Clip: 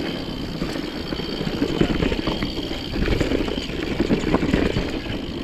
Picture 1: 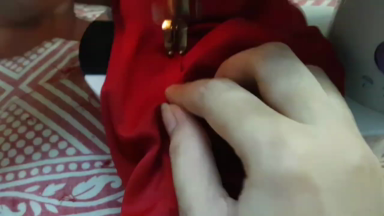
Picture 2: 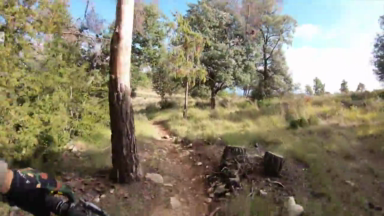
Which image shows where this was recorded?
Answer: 2